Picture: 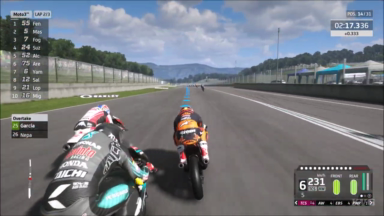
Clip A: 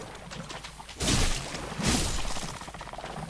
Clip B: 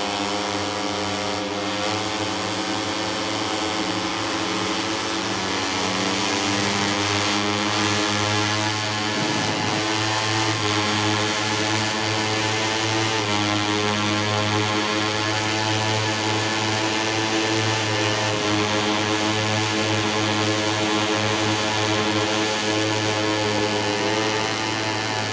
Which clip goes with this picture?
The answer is B